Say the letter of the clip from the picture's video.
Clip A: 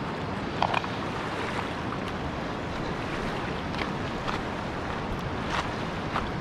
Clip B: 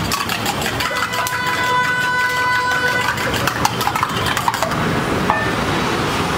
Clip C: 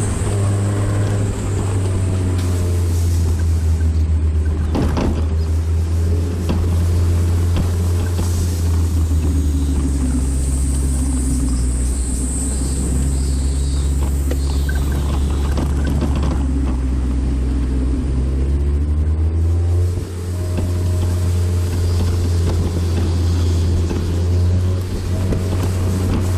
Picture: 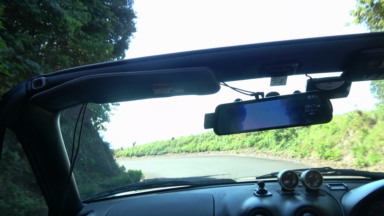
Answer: C